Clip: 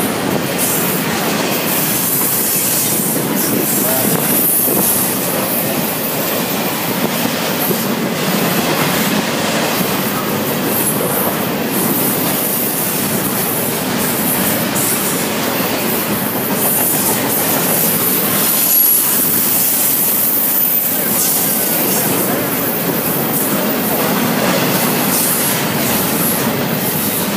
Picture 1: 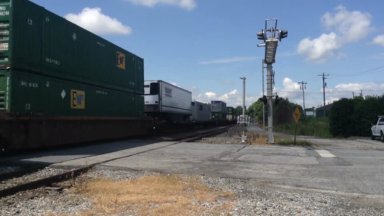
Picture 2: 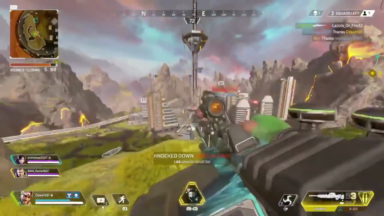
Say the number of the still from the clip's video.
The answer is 1